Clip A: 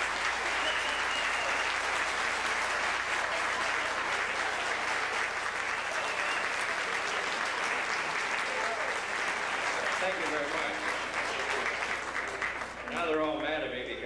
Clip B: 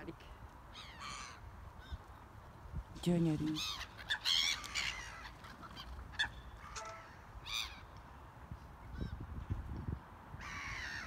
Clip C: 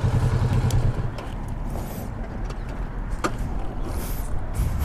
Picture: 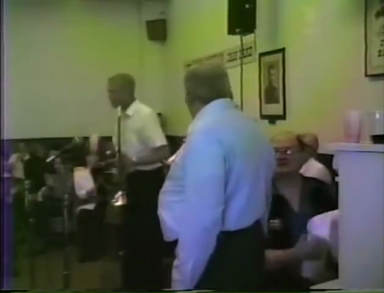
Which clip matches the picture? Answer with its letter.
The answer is A